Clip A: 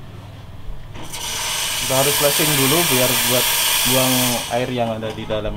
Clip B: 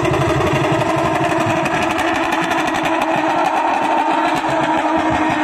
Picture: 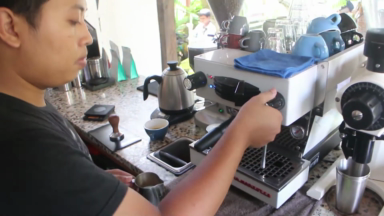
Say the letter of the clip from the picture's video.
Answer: A